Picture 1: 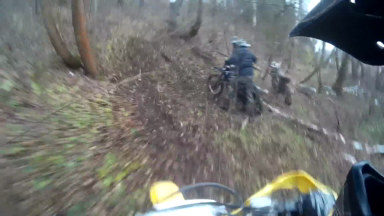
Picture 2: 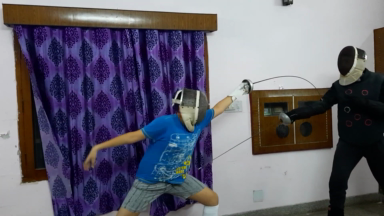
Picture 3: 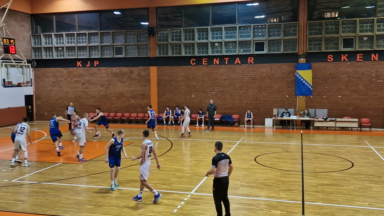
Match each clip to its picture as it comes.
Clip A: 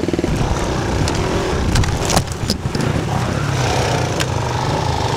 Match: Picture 1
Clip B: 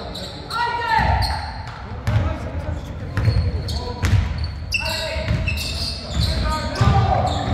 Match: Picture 3